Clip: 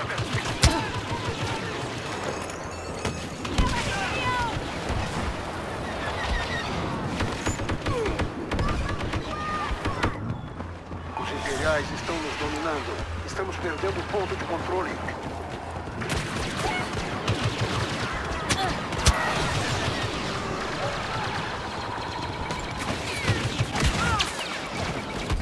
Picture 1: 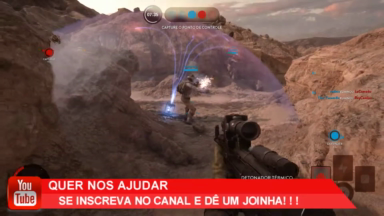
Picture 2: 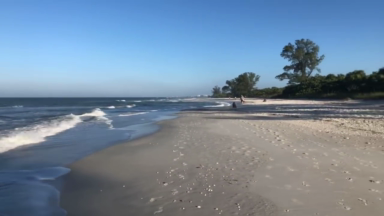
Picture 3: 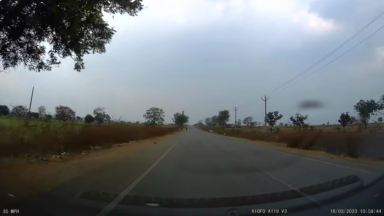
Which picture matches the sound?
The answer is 1